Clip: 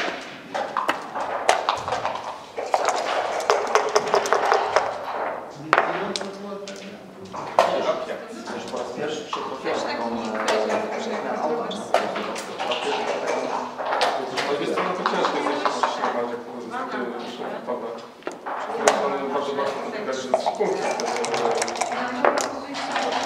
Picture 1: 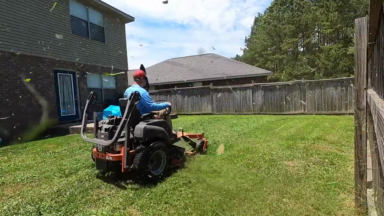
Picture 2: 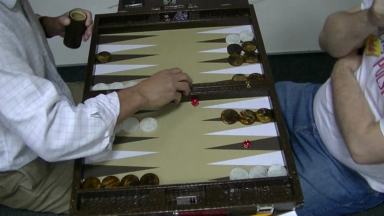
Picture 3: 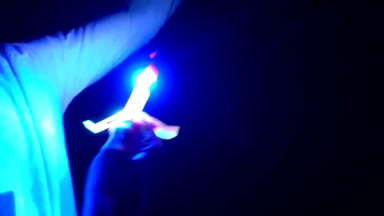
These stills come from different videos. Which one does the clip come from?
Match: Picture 2